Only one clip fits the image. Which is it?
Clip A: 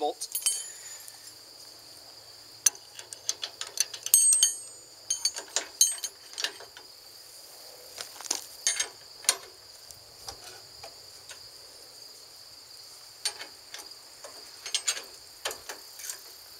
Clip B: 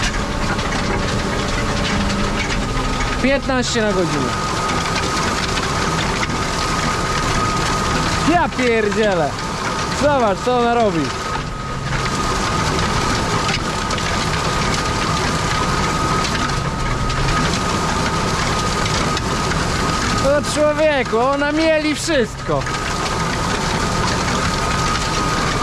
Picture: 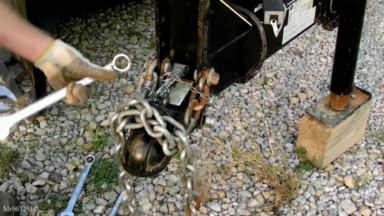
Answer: A